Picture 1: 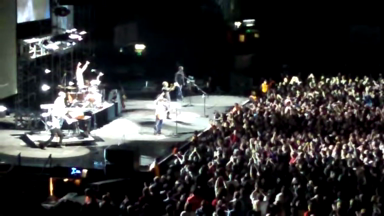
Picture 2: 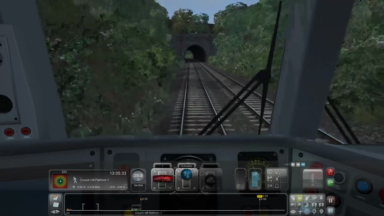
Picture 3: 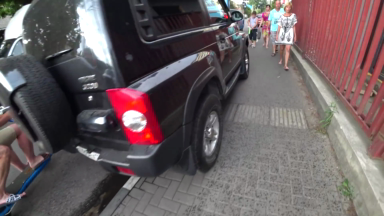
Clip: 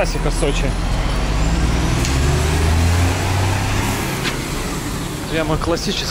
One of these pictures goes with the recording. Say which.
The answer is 3